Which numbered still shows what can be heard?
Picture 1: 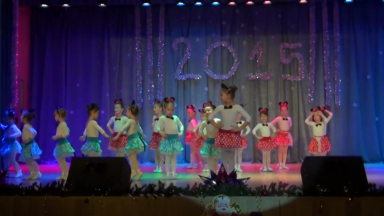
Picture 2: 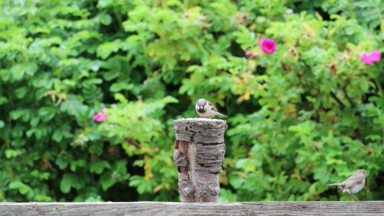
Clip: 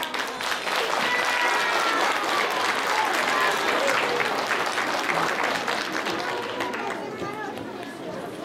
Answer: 1